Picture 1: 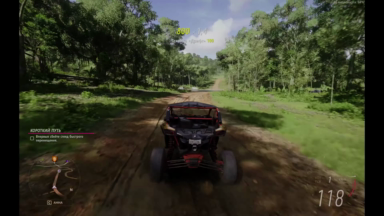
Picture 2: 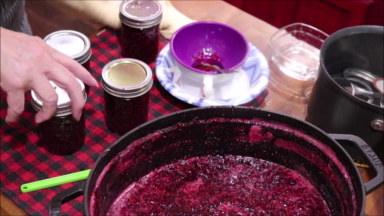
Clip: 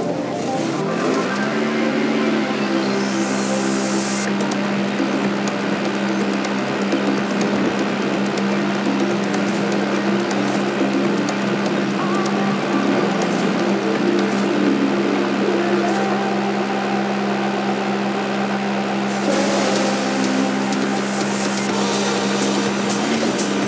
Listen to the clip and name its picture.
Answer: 1